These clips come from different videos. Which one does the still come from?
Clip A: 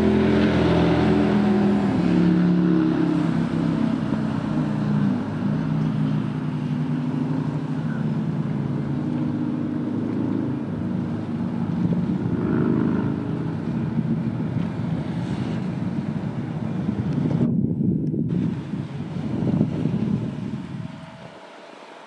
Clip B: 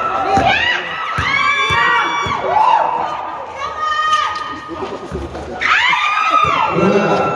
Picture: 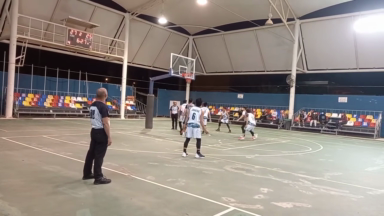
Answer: B